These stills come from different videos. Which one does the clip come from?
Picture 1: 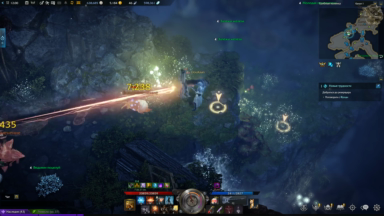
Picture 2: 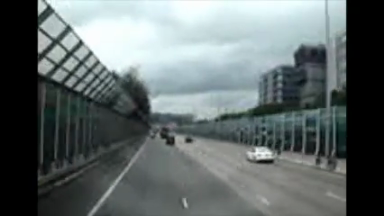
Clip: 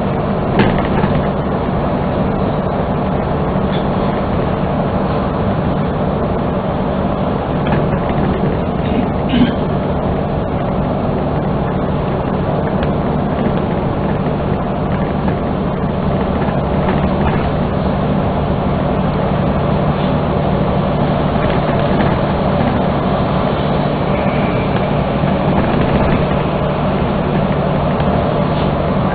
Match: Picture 2